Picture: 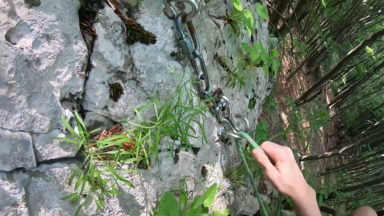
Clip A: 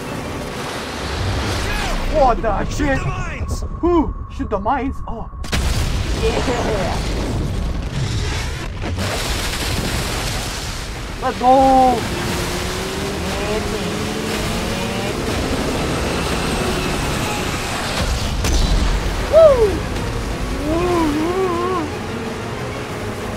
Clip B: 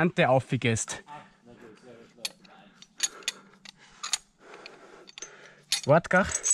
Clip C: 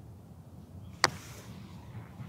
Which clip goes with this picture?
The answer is B